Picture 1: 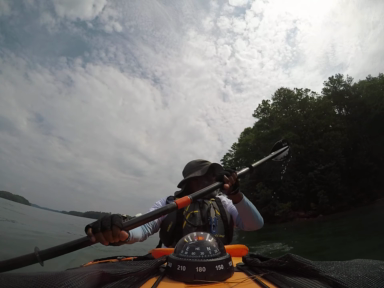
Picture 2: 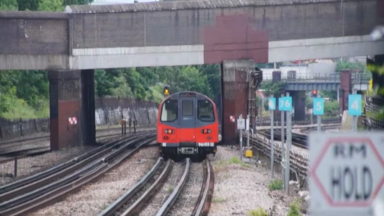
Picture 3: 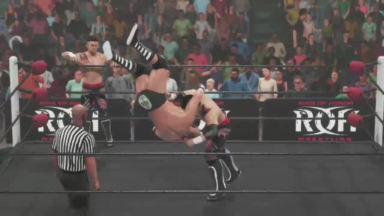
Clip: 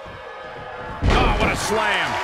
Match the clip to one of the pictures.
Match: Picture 3